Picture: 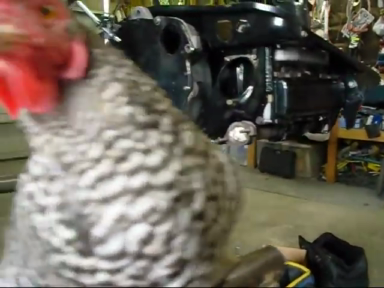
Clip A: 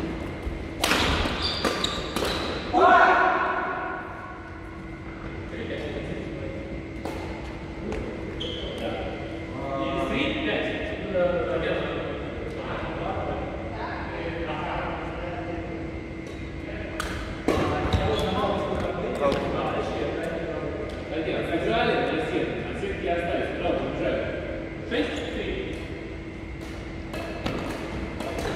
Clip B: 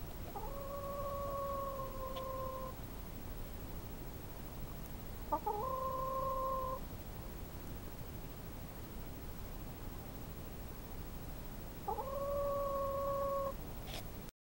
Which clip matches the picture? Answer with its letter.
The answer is B